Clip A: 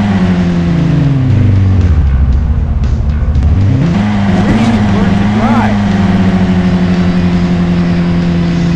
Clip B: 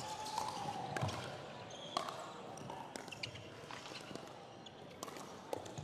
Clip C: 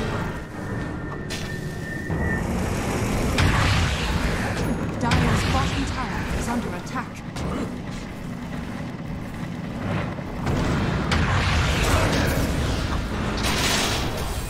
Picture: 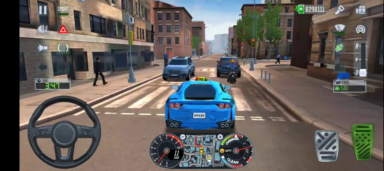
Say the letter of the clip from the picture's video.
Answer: A